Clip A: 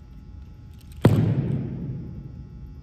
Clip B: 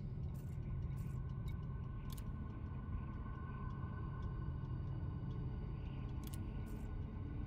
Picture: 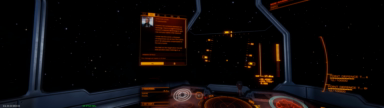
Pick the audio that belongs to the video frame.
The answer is B